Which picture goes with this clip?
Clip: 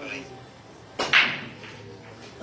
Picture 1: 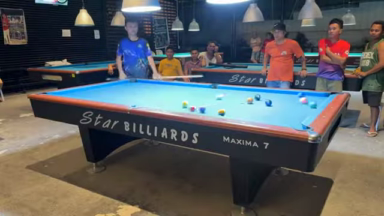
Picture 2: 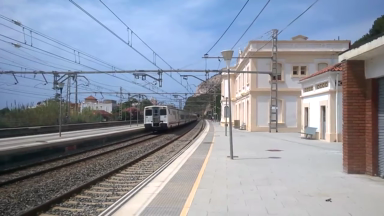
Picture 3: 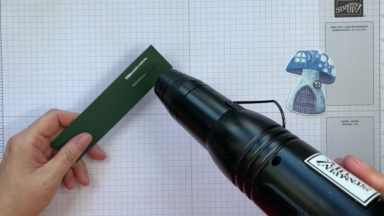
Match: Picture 1